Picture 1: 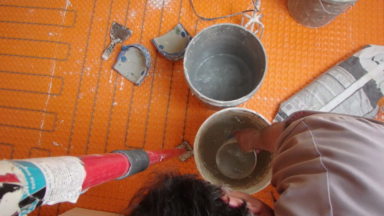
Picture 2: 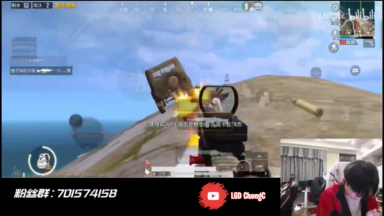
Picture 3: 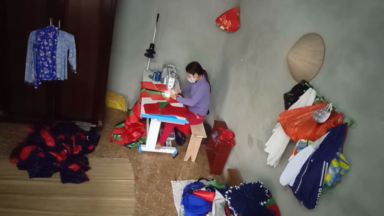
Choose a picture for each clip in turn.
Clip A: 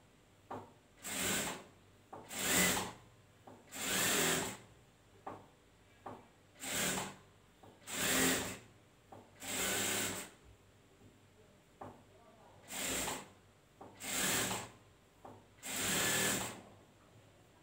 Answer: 3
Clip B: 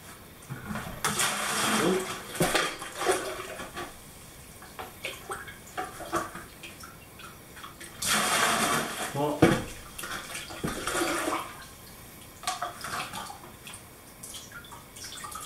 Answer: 1